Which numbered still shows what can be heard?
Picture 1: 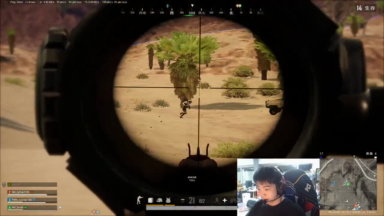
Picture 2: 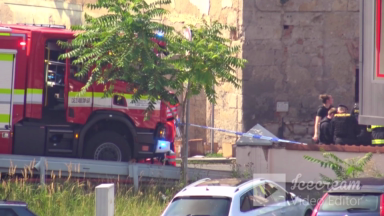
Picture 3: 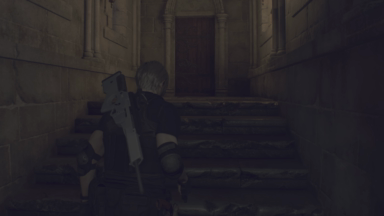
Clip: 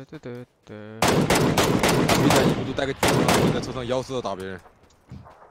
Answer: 1